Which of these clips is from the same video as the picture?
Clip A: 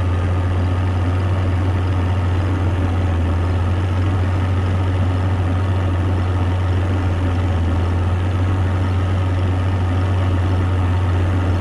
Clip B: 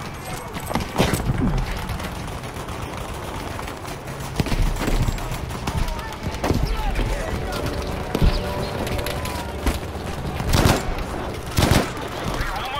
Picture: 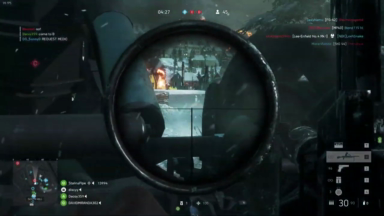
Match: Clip B